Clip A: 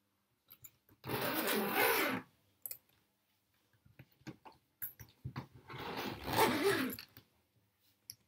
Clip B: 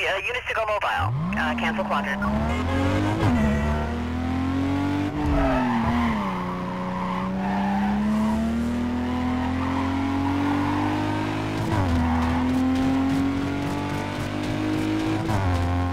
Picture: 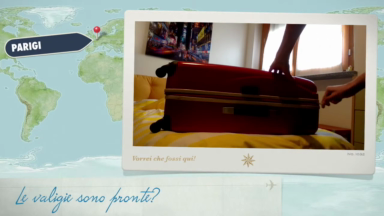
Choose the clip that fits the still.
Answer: A